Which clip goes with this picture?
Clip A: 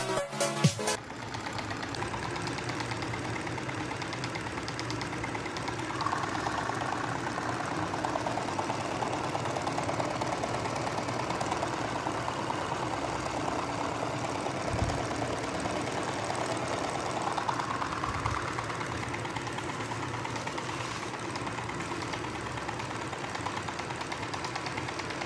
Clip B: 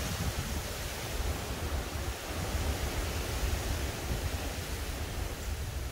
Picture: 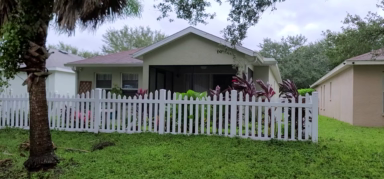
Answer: B